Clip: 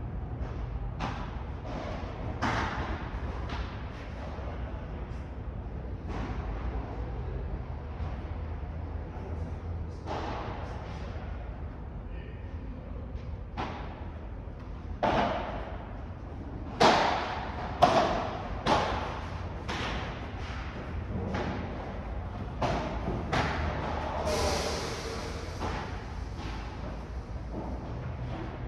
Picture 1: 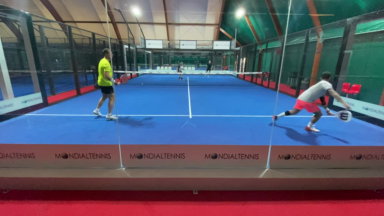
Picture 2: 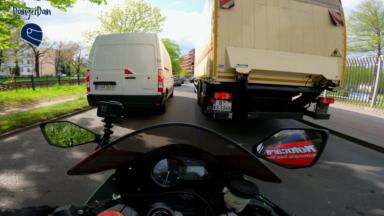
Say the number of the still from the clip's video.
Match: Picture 1